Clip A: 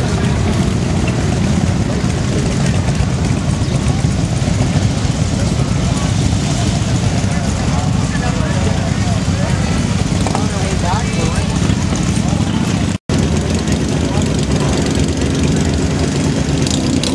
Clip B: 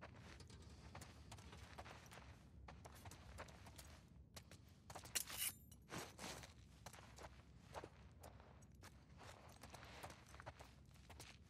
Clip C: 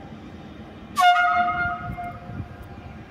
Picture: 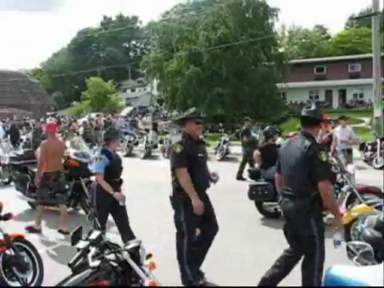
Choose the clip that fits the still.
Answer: A